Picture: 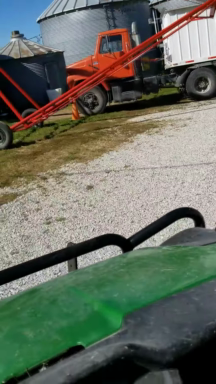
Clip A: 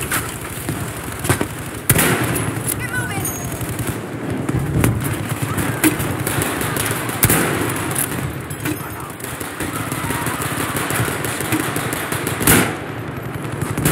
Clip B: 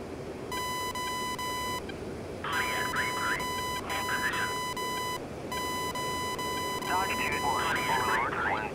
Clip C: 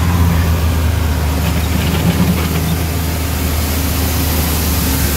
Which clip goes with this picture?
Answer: C